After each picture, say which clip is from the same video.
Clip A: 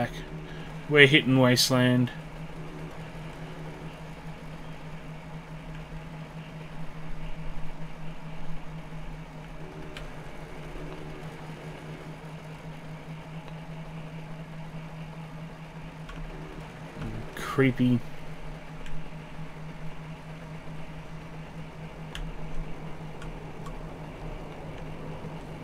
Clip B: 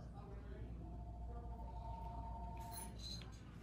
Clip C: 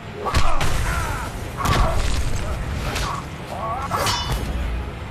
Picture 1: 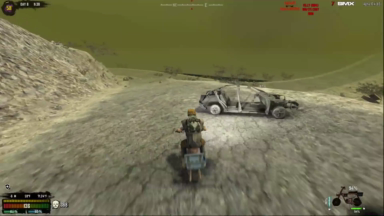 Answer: A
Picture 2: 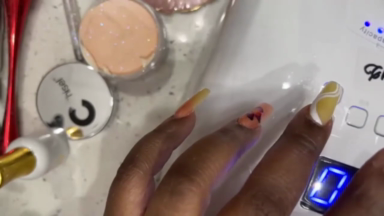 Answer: B